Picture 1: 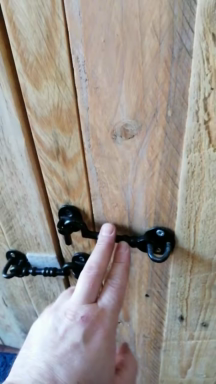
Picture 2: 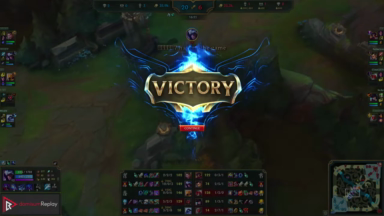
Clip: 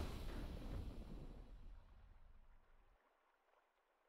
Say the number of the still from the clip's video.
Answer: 2